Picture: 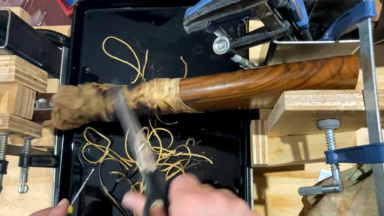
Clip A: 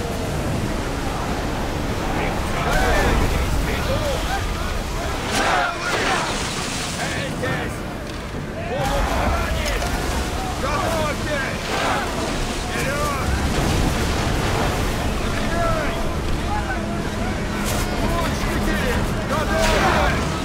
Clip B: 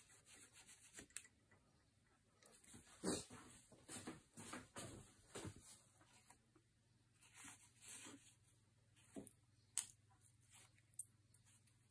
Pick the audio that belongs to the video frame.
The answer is B